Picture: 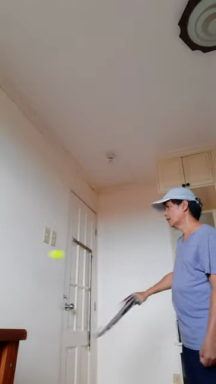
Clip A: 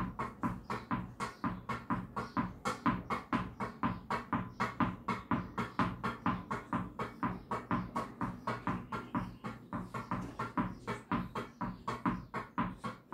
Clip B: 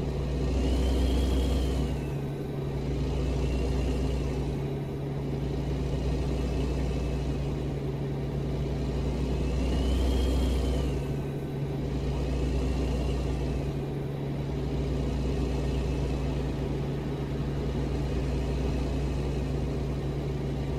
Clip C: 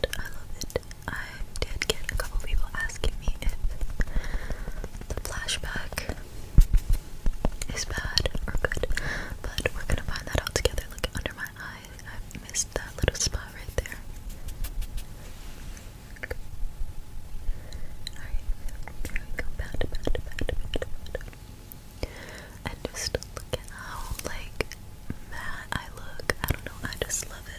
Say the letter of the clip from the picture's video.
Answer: A